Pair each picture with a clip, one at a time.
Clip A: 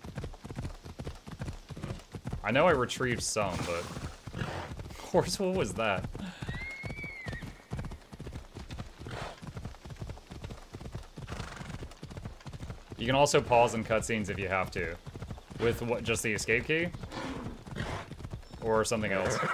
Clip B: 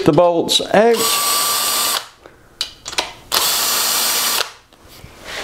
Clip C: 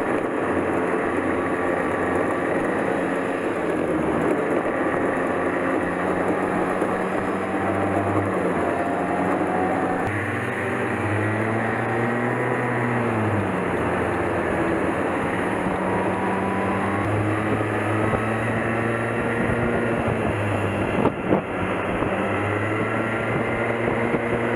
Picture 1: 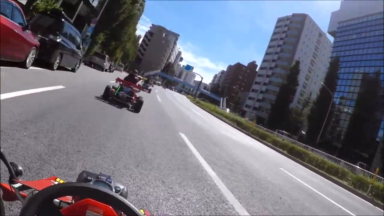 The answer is C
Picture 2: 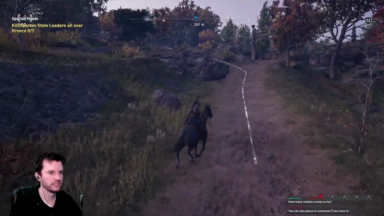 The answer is A